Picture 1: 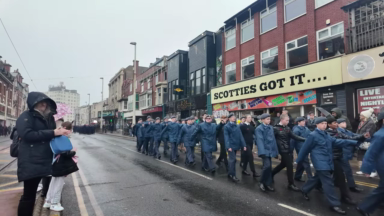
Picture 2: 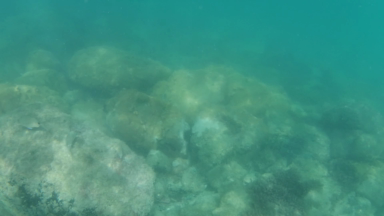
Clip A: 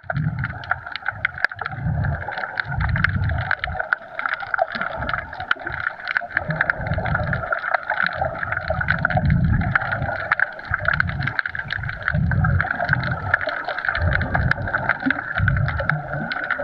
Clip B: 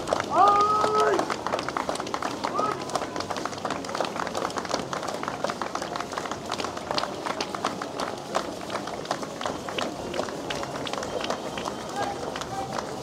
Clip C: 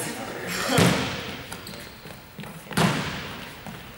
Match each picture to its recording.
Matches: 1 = B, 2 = A